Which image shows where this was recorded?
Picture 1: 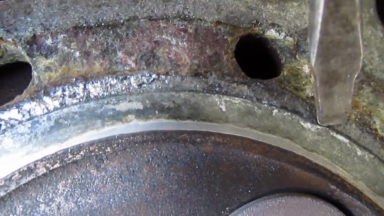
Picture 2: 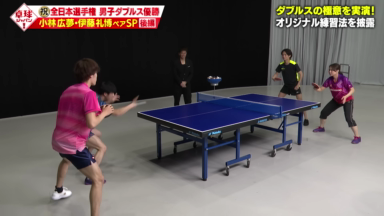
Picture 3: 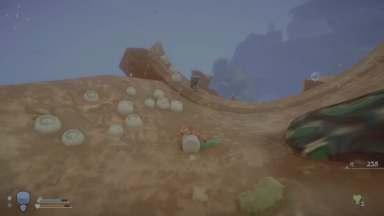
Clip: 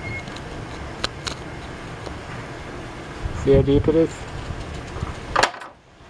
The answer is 1